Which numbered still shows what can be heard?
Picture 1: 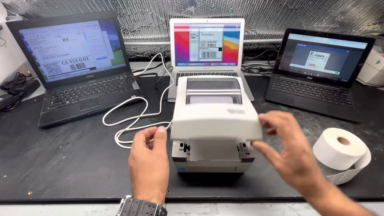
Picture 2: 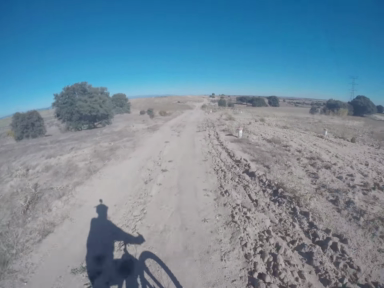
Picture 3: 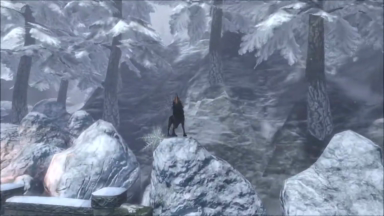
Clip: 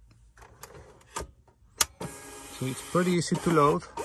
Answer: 1